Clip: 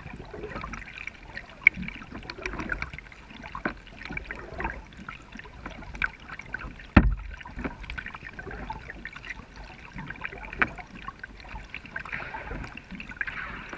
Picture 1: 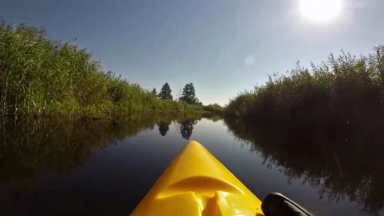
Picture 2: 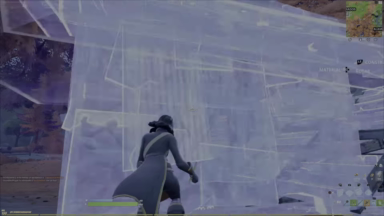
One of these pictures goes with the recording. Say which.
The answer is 1